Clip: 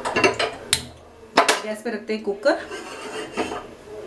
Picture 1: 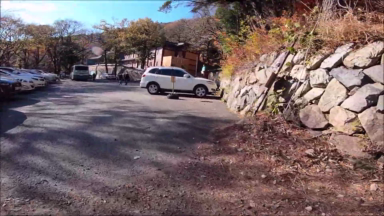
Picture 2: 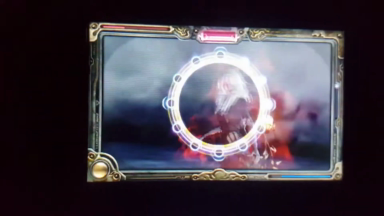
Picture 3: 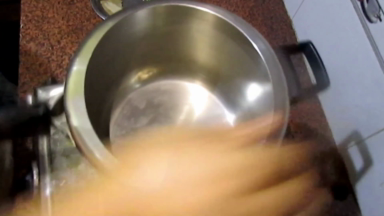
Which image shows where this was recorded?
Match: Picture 3